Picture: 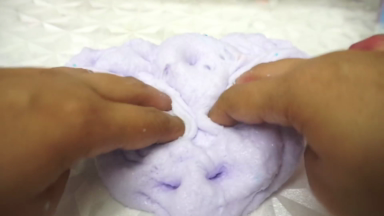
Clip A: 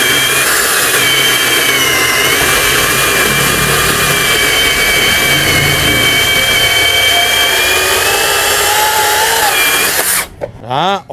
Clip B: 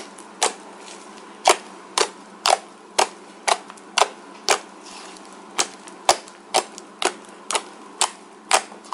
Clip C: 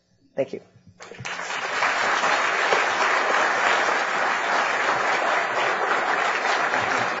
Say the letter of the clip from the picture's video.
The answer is B